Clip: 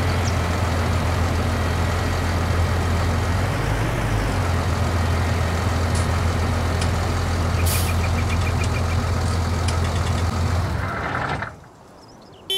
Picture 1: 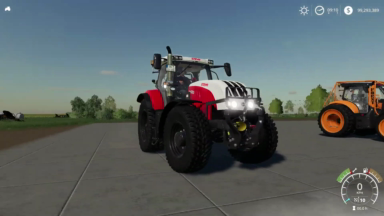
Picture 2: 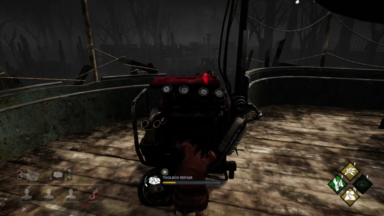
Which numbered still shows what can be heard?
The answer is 1